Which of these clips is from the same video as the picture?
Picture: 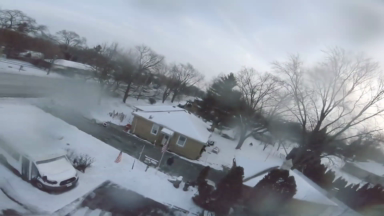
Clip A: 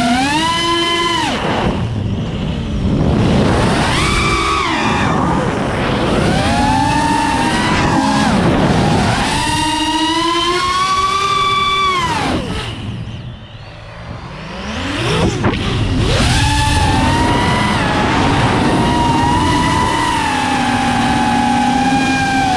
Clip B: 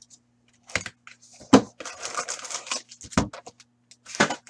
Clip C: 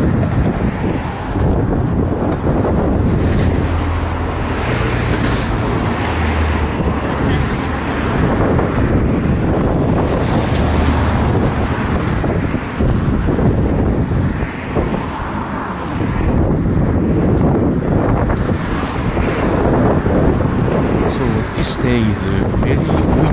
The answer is A